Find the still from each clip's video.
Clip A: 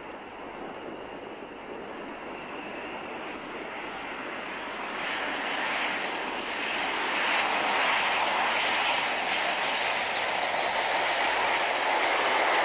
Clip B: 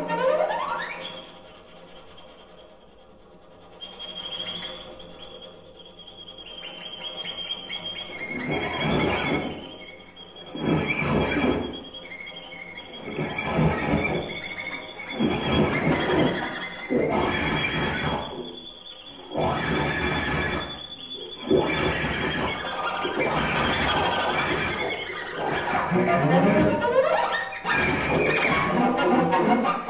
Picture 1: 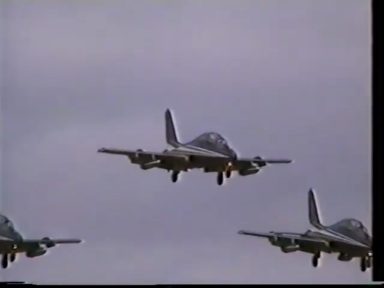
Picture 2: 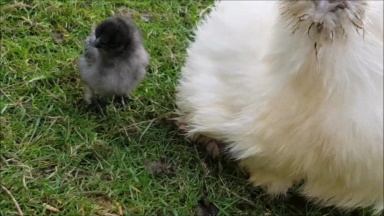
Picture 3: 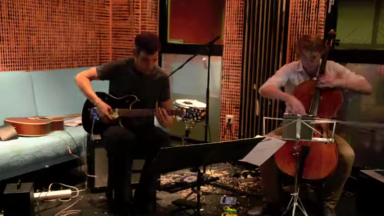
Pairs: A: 1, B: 3